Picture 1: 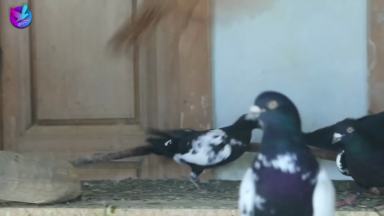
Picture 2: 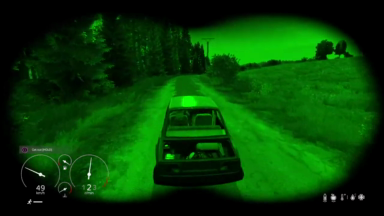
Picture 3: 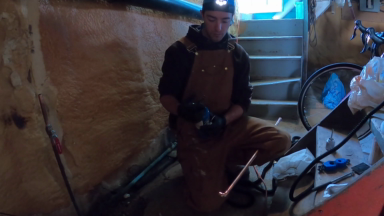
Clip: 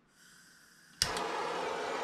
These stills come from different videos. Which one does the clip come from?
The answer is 3